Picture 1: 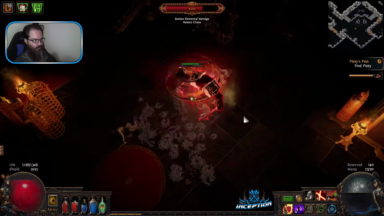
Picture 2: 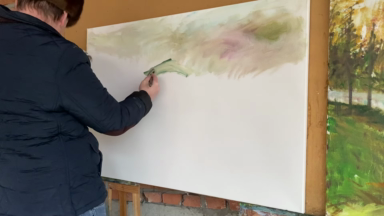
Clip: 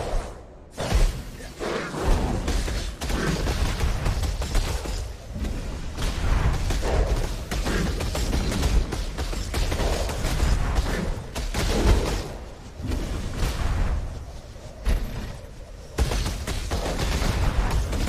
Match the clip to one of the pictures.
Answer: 1